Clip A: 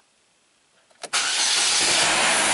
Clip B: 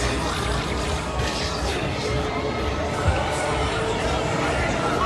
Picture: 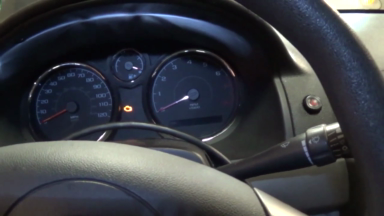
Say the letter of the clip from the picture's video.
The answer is A